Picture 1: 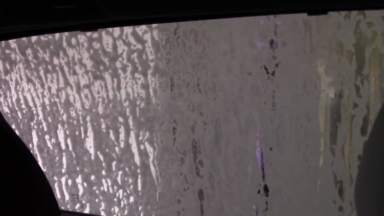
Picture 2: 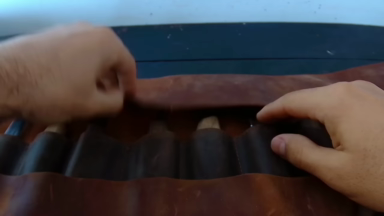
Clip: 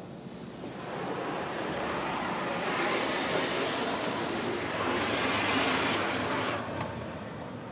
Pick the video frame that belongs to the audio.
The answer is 1